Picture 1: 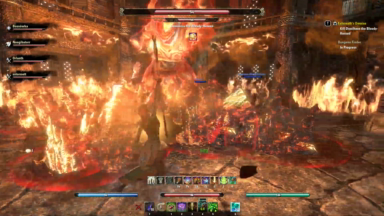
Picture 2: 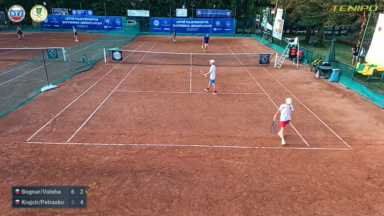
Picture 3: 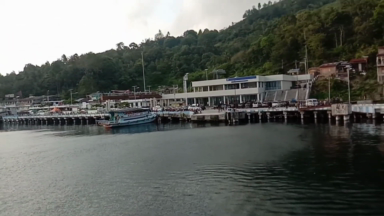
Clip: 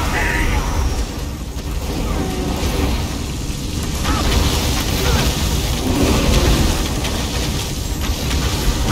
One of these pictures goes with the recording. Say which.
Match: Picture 1